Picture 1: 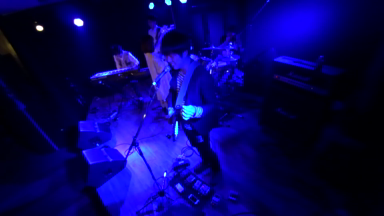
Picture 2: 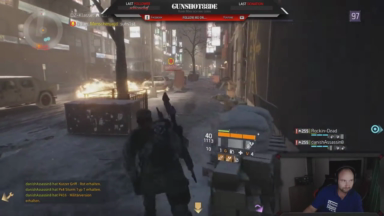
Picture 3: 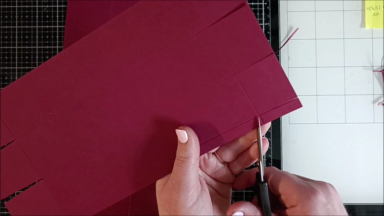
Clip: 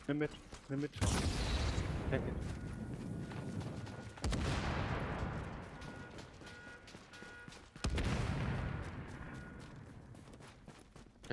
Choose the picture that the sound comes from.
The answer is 2